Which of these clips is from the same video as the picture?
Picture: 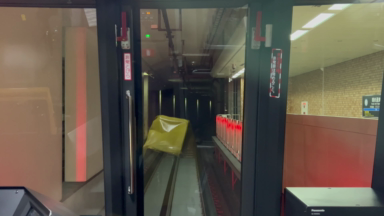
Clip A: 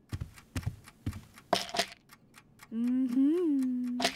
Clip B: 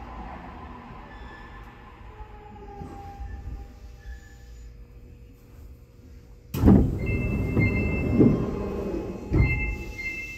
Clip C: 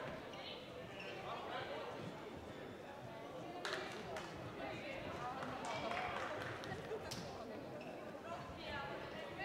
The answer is B